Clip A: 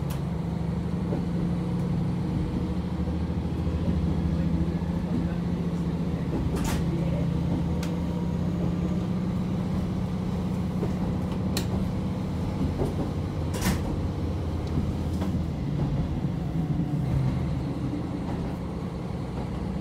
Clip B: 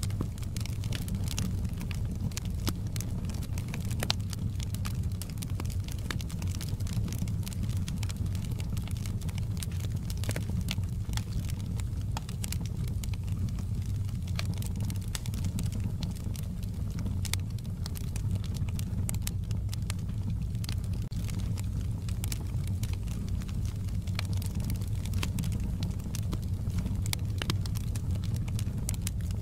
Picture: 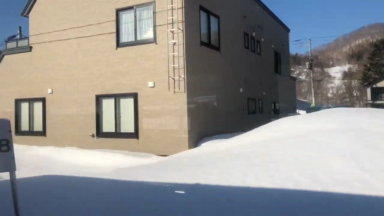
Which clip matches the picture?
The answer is A